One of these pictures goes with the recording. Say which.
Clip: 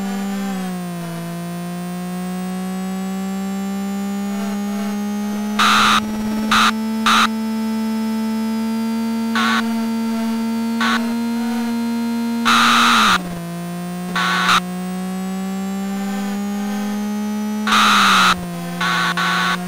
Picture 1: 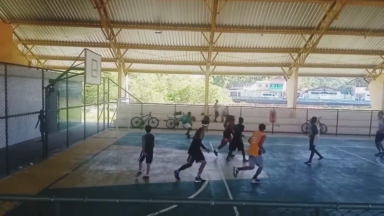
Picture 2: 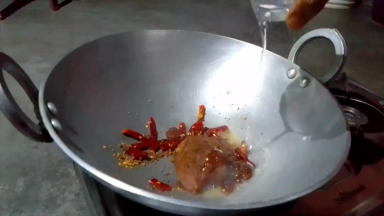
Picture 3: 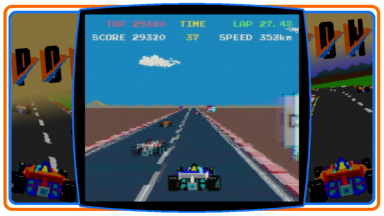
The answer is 3